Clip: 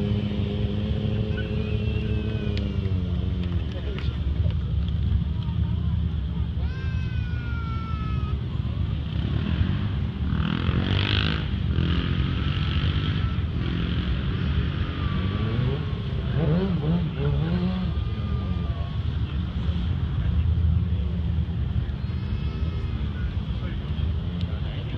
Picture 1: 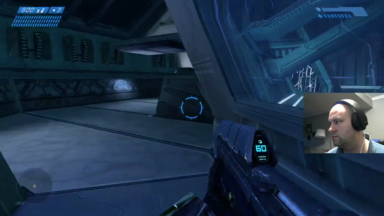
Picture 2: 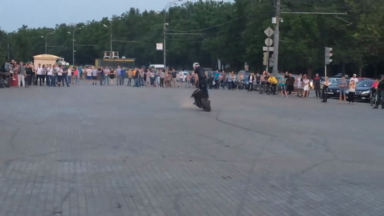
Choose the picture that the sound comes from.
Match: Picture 2